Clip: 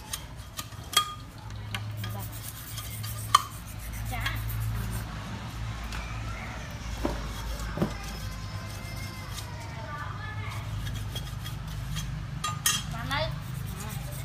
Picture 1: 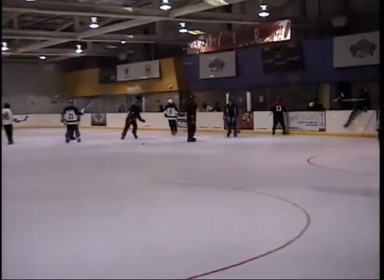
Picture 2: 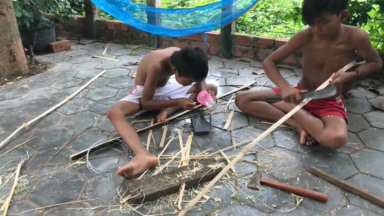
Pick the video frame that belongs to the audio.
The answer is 2